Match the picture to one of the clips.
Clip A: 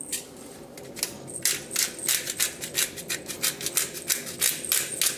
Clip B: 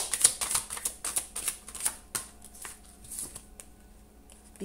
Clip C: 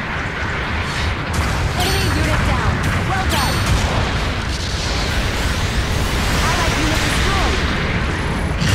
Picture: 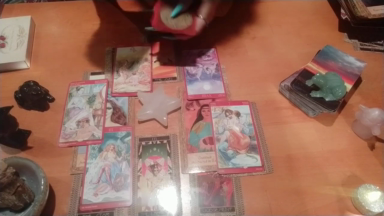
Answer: B